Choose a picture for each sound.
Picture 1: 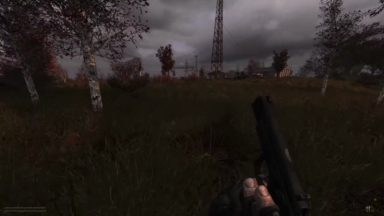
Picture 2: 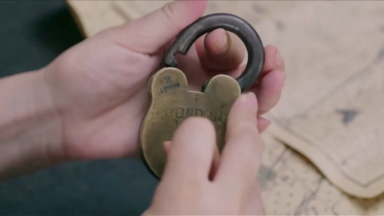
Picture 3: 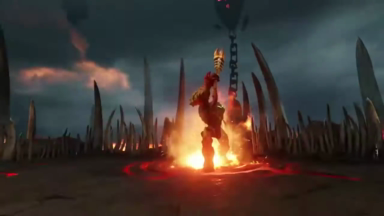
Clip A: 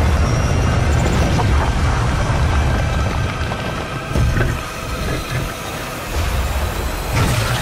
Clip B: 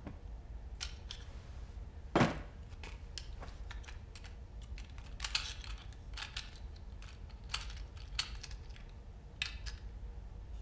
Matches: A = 3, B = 2